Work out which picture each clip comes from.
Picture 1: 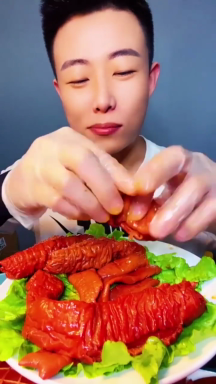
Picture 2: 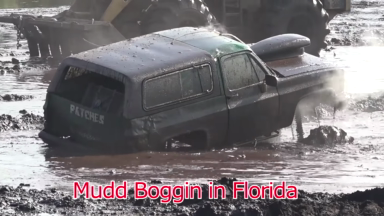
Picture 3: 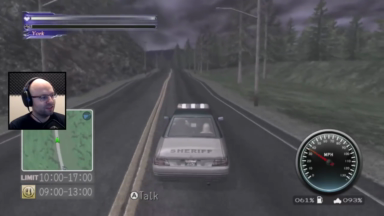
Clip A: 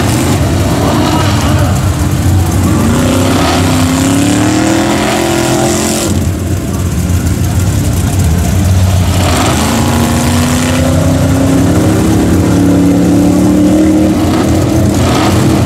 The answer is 2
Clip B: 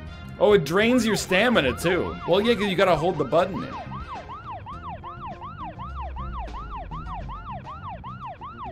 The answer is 3